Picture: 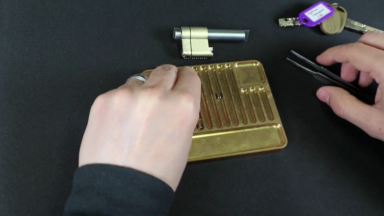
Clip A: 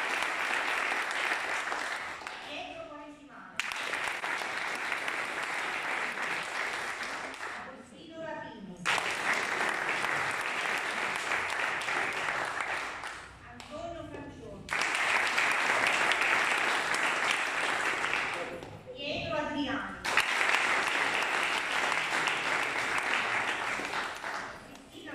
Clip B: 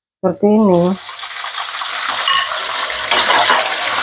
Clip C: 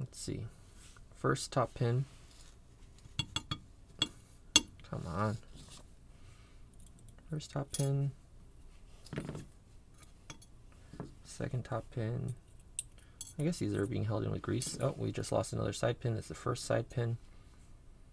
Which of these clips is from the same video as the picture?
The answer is C